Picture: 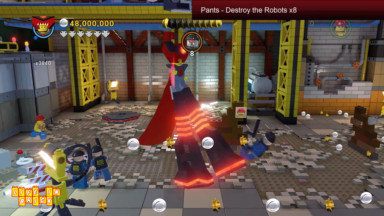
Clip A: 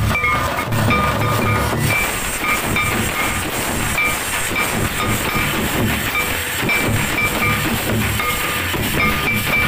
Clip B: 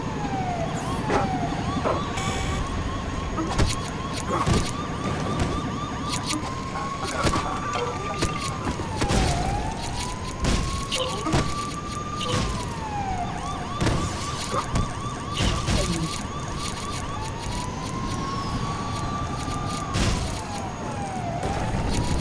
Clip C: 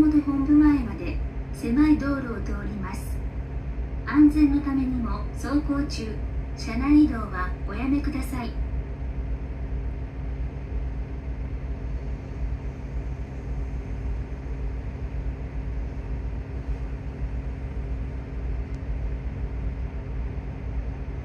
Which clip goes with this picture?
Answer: B